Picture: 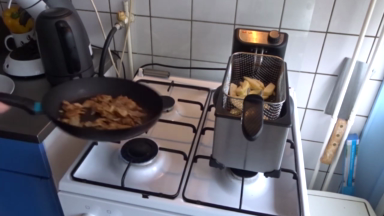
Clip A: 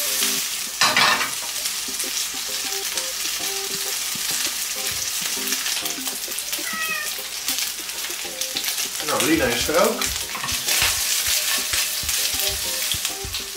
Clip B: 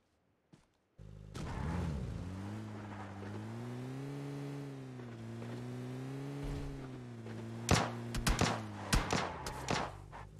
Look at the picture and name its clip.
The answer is A